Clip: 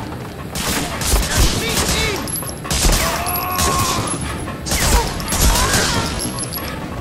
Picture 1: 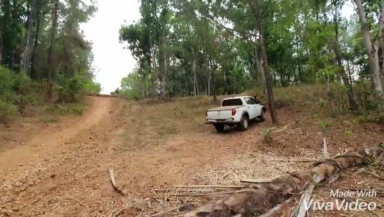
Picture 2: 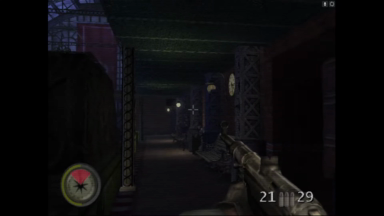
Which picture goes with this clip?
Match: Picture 2